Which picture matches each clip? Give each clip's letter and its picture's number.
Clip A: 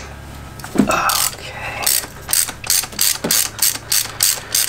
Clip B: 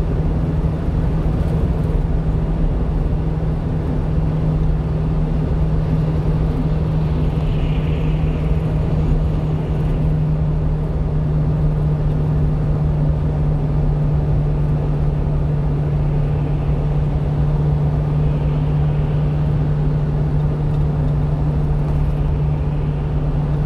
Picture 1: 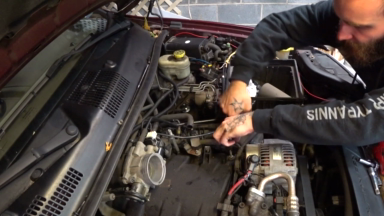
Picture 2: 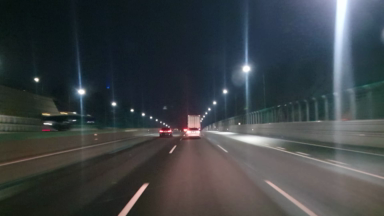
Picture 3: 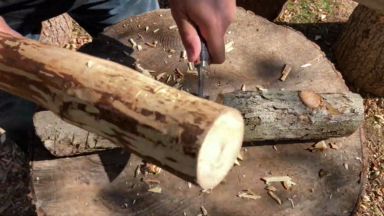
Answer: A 1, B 2